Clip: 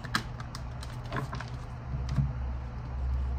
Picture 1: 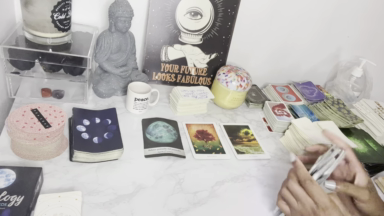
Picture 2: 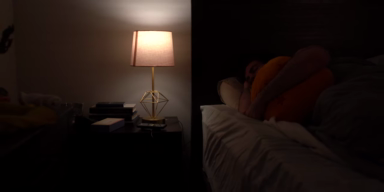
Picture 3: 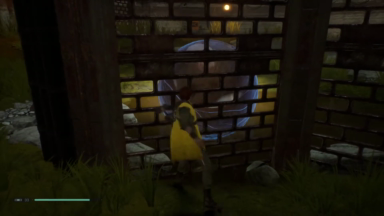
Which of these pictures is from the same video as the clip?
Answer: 1